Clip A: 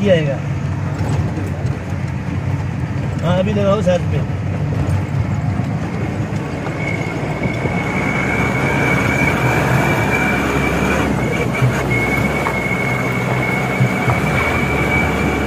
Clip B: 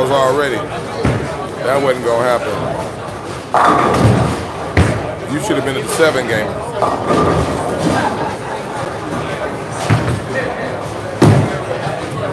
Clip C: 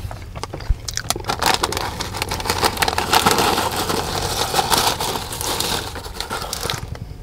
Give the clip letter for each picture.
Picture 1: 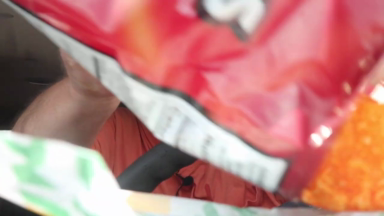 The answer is C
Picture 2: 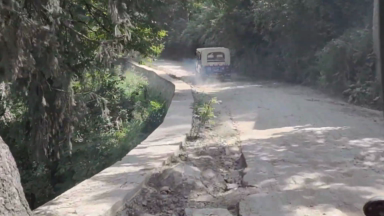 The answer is A